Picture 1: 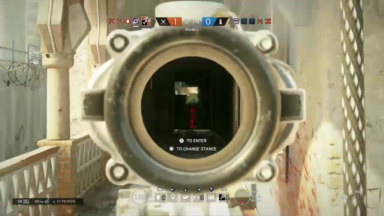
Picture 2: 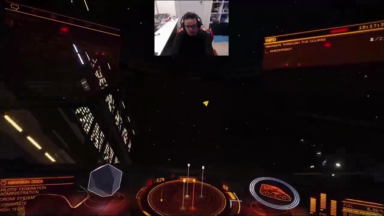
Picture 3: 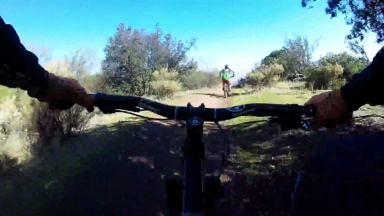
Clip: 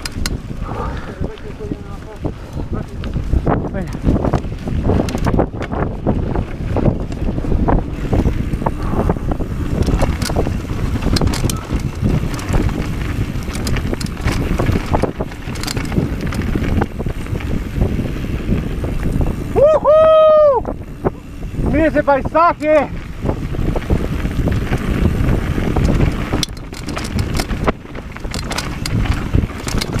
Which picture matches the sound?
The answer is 3